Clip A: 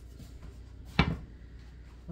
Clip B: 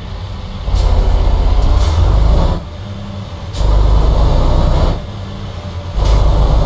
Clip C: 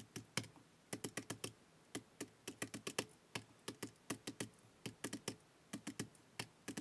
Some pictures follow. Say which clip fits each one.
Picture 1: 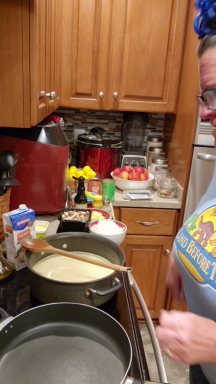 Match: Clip A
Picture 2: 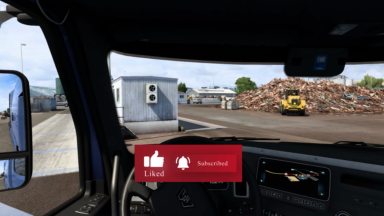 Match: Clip B